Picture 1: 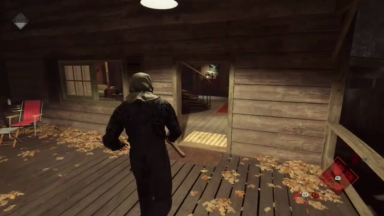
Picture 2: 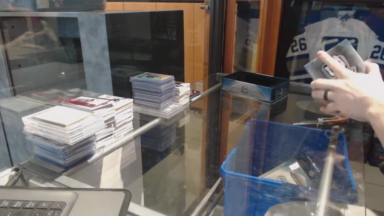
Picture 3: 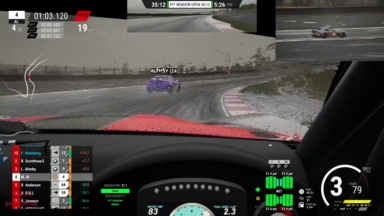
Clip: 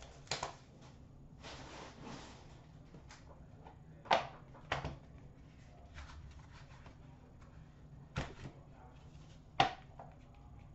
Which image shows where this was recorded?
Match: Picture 2